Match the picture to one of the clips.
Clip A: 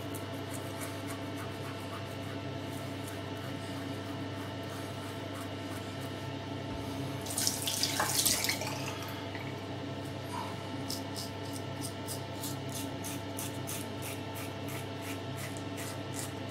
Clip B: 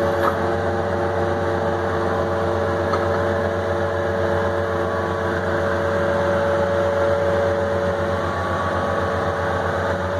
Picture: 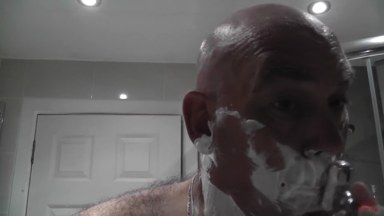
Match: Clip A